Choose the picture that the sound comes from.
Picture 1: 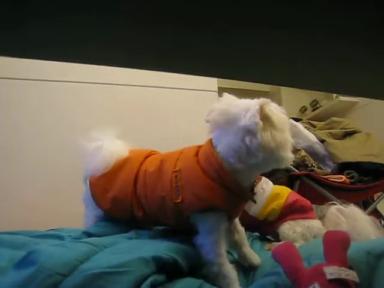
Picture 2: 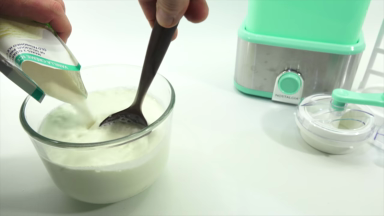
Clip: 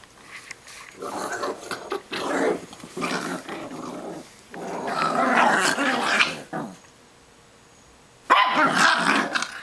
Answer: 1